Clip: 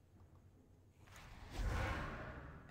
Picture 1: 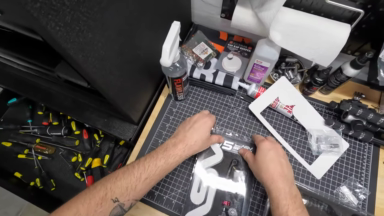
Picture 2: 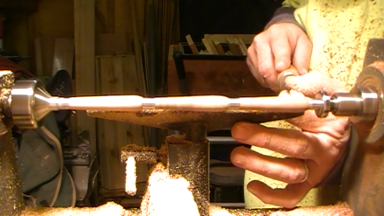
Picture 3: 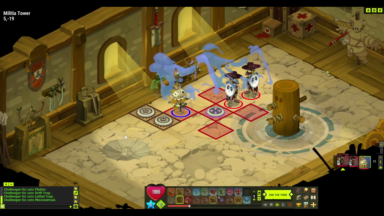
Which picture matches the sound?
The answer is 3